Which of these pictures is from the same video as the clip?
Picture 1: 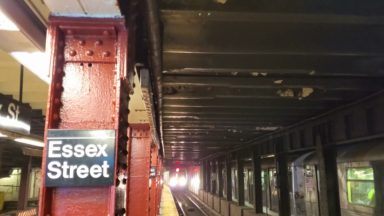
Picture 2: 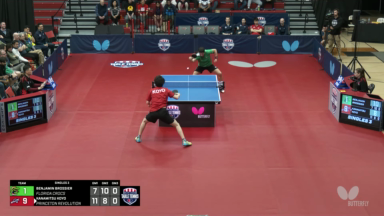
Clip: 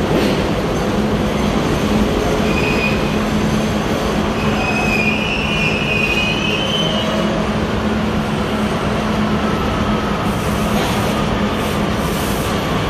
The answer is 1